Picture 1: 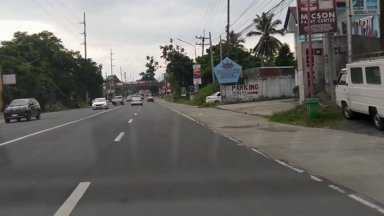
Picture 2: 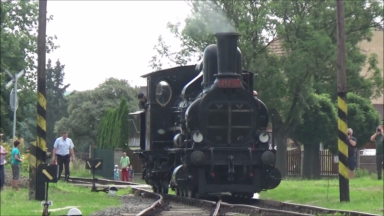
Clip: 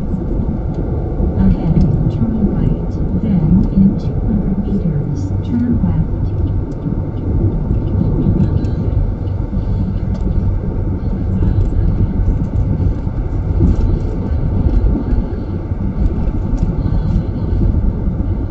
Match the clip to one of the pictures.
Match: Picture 1